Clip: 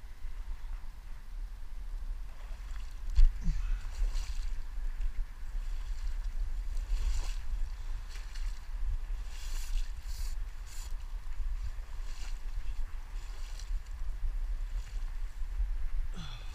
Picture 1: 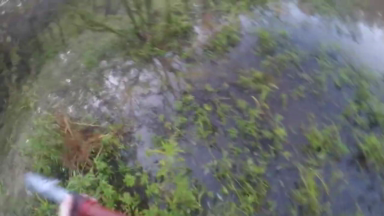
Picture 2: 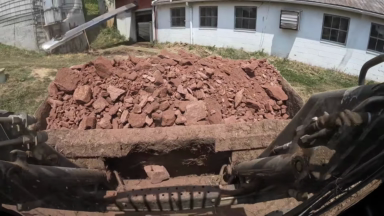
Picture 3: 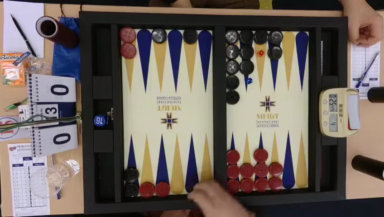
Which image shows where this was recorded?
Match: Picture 1